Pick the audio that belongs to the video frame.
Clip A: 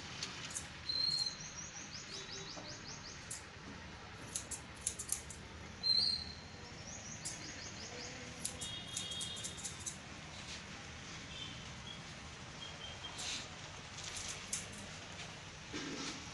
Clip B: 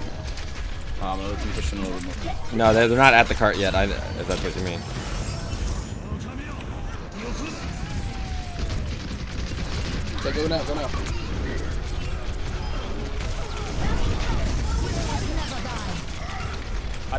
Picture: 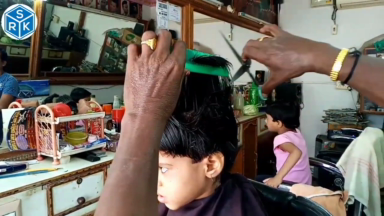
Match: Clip A